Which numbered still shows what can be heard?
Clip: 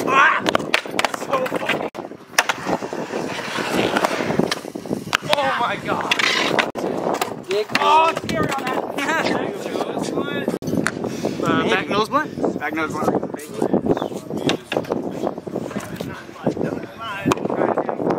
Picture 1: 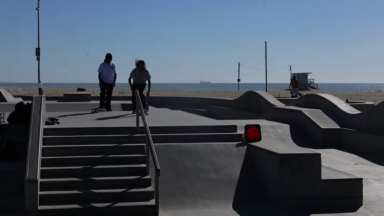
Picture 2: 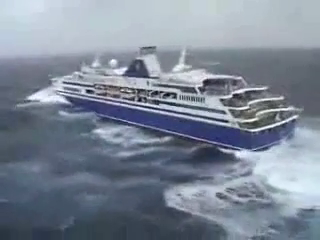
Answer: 1